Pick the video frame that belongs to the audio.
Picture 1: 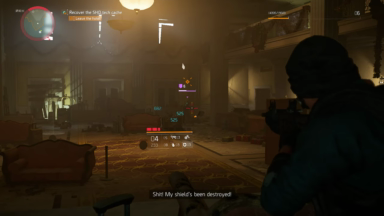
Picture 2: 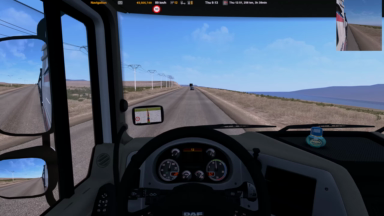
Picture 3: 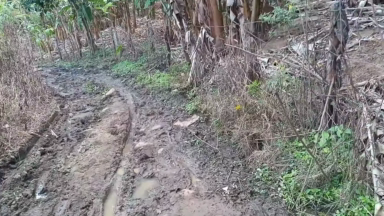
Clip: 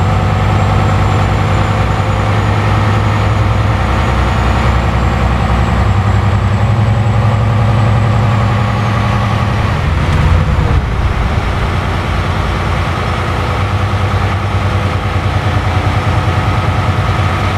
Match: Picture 2